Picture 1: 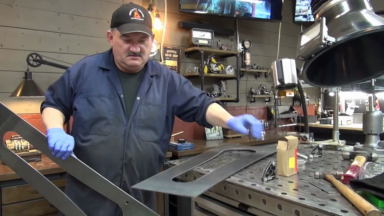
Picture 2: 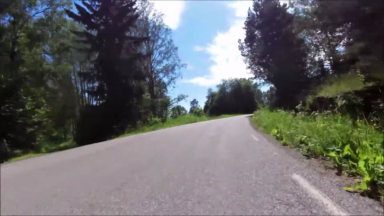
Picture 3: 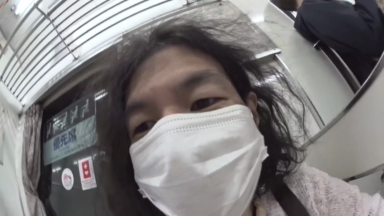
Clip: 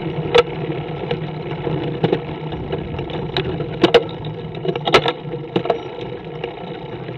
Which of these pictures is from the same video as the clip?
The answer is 2